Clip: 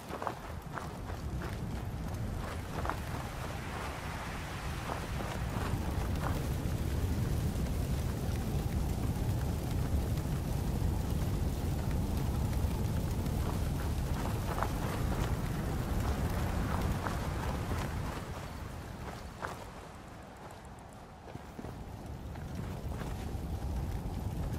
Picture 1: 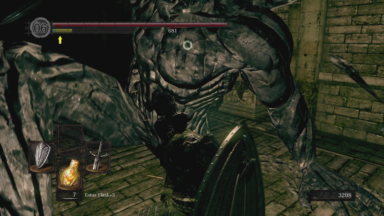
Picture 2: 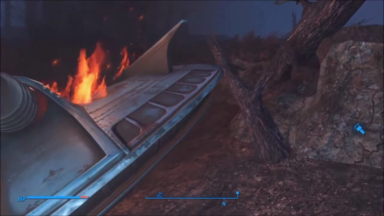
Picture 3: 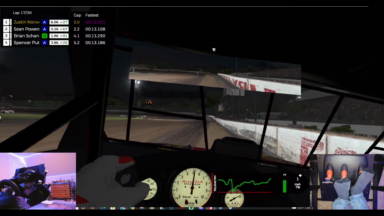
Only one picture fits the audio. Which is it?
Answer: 2